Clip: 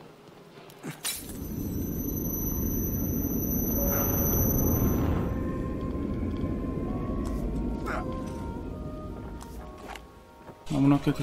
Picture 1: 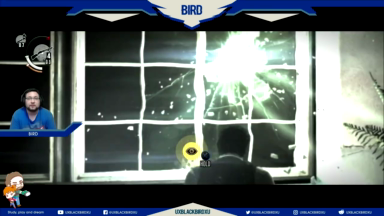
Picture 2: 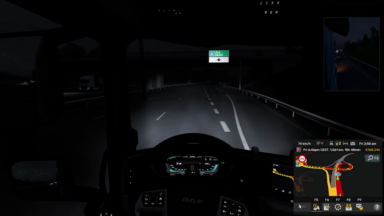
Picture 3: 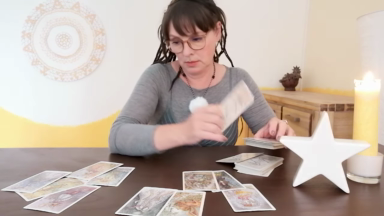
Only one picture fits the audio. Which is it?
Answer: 1